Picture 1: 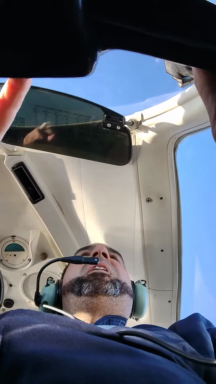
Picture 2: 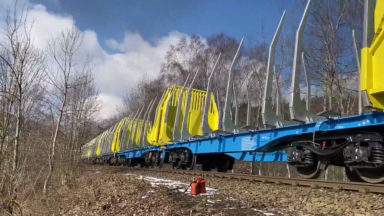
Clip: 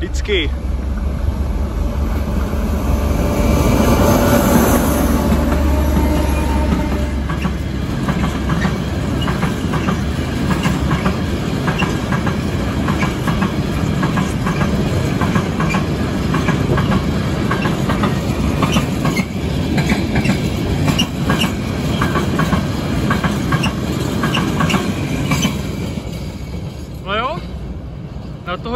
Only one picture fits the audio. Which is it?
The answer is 2